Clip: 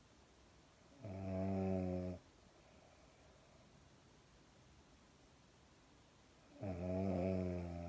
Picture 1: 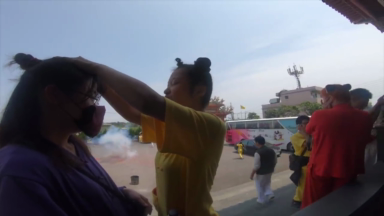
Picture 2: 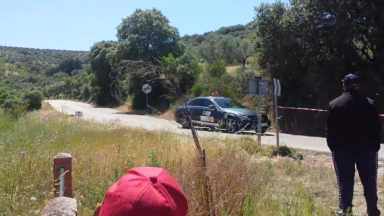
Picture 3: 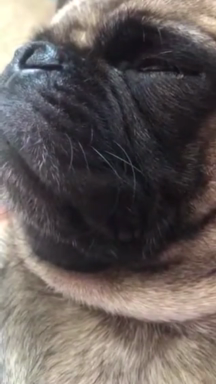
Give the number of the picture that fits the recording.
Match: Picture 3